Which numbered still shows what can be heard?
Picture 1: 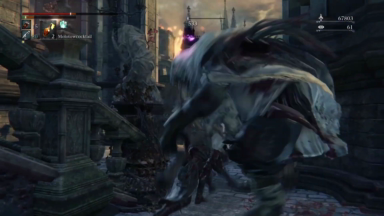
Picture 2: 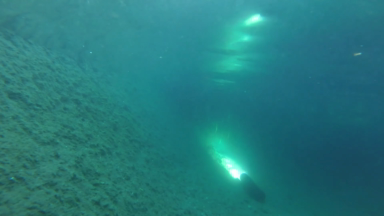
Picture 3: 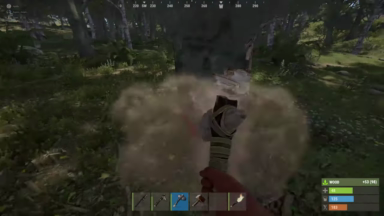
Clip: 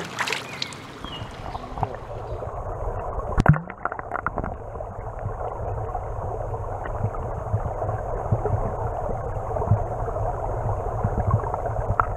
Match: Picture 2